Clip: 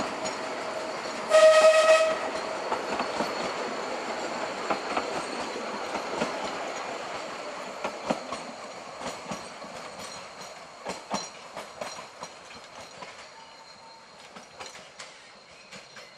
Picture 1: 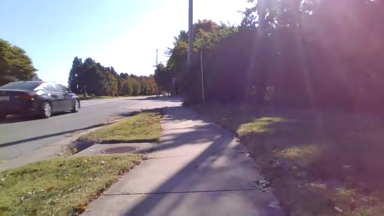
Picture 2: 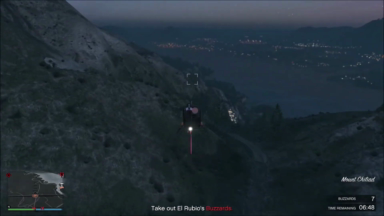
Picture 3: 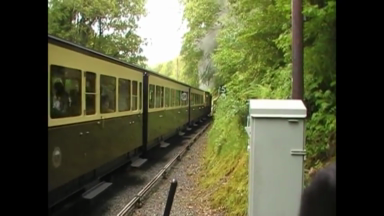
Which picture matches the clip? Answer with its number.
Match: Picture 3